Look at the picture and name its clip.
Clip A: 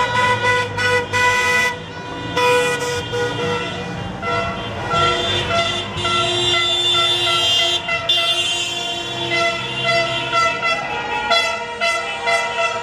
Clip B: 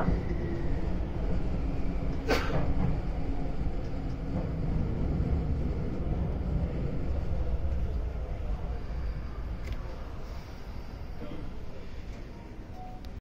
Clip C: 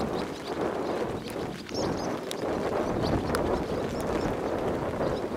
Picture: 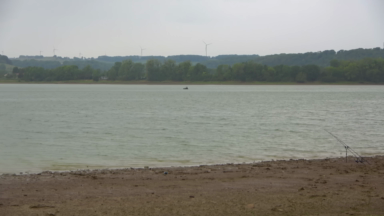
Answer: C